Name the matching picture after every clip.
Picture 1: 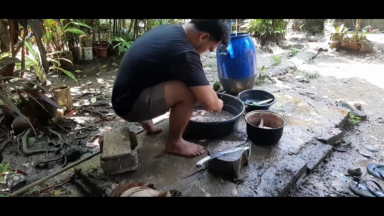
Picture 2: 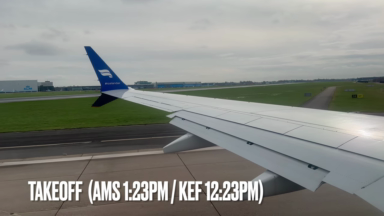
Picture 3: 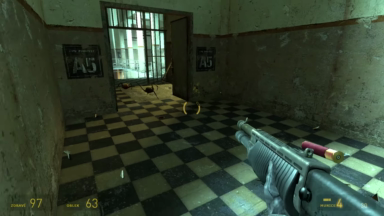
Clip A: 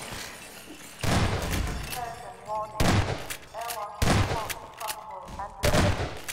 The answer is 3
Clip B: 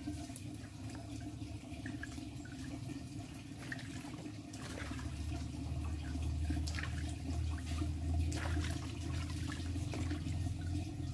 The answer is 1